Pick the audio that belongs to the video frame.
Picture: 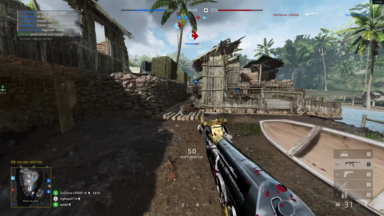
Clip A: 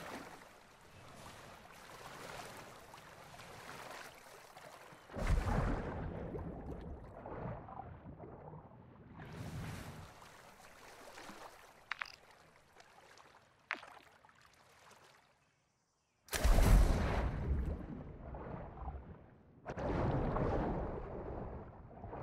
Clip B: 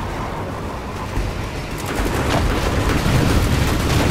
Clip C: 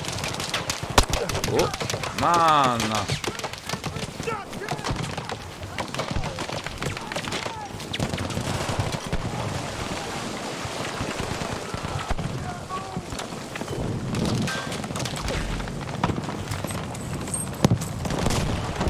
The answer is C